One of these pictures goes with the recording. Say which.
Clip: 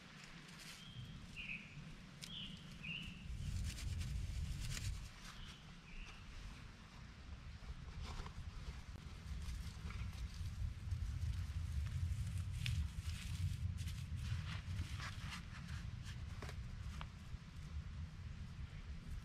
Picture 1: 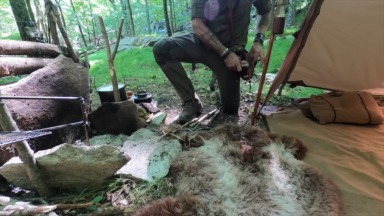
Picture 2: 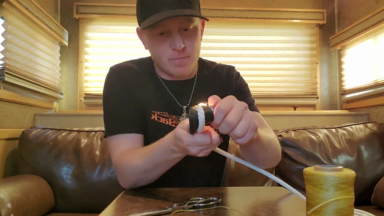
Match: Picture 1